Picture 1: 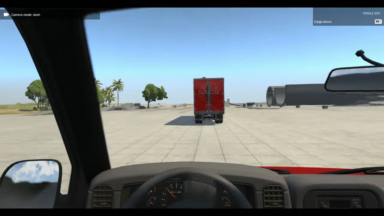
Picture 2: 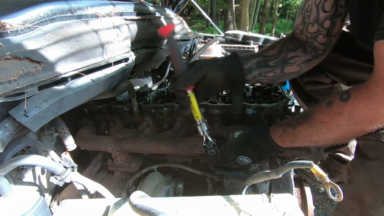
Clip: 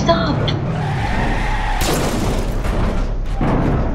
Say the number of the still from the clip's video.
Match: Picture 1